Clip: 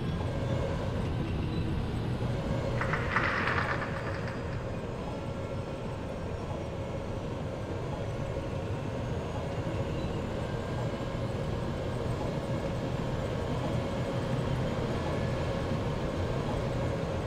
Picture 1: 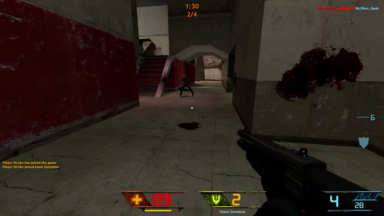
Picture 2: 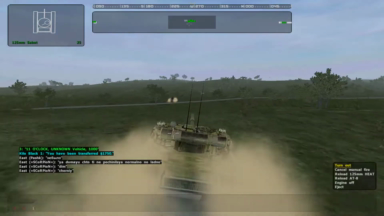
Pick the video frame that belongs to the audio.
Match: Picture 2